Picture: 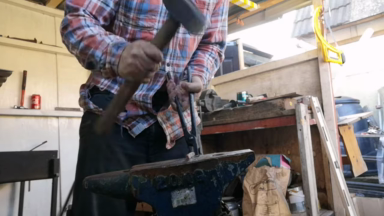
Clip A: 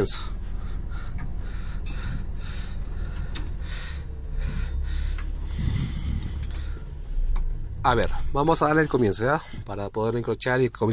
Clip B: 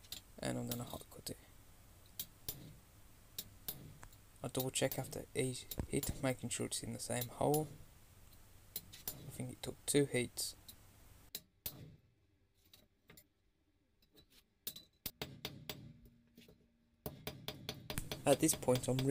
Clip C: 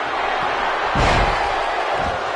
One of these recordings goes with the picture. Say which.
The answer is B